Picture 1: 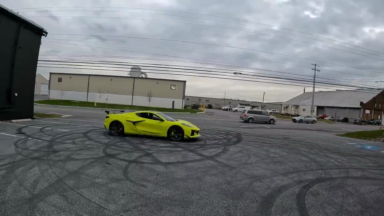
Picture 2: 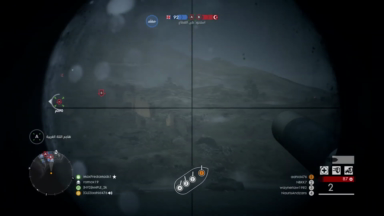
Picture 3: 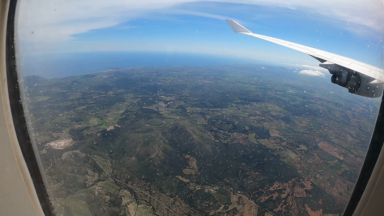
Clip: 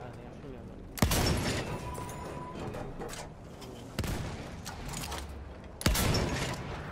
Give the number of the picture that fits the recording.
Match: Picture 2